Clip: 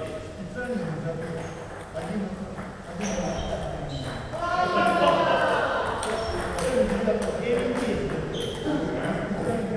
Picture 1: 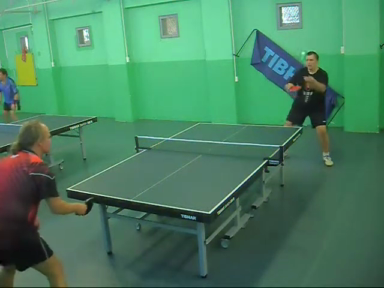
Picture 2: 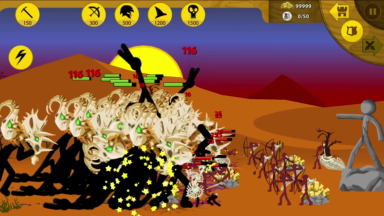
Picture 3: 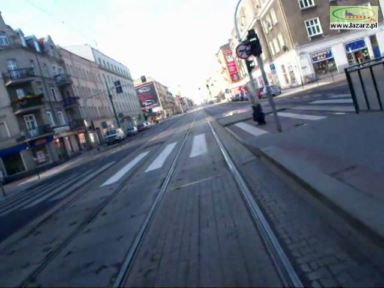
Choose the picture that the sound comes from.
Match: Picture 1